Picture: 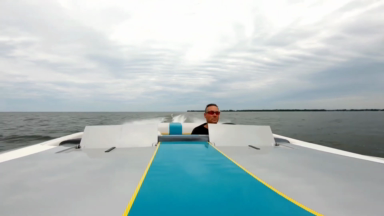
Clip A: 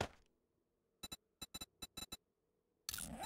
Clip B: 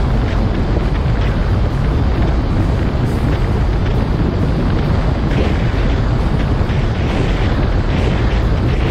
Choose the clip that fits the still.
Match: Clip B